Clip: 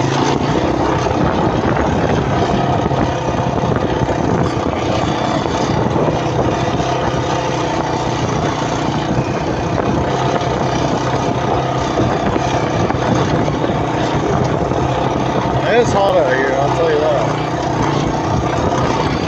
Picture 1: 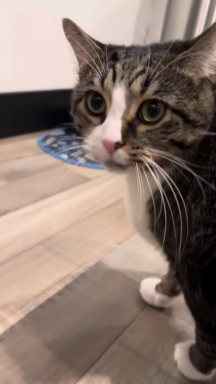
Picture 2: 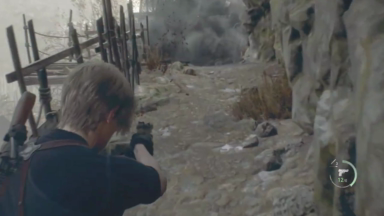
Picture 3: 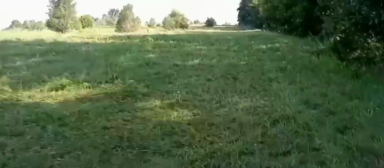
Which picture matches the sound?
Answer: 3